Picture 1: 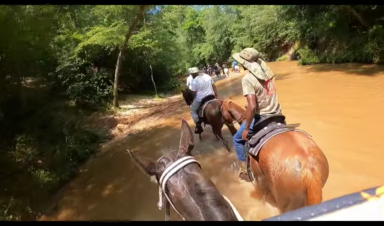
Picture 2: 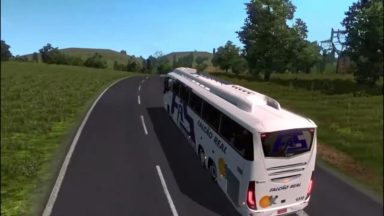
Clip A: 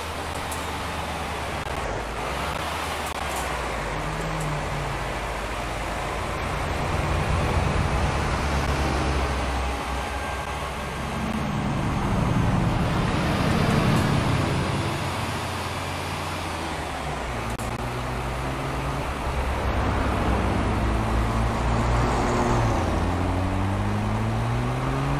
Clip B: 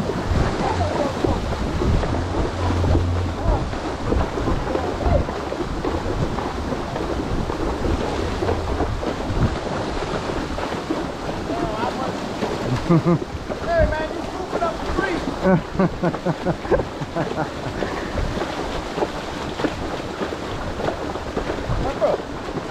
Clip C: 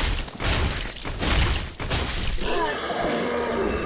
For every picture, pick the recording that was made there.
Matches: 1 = B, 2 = A